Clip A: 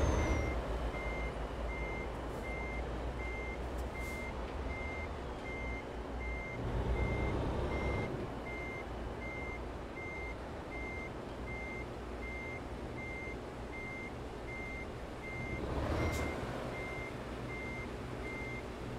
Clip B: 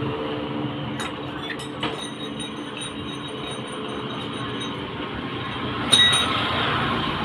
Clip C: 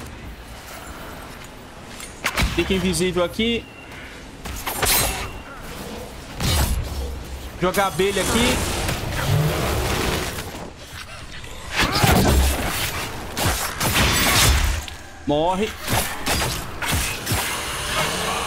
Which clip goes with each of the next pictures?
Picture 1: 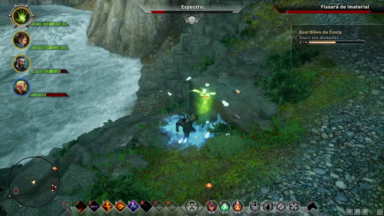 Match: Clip C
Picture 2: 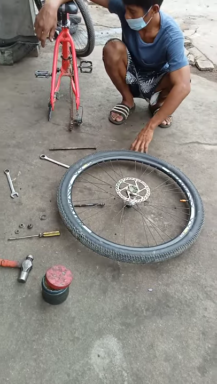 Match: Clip B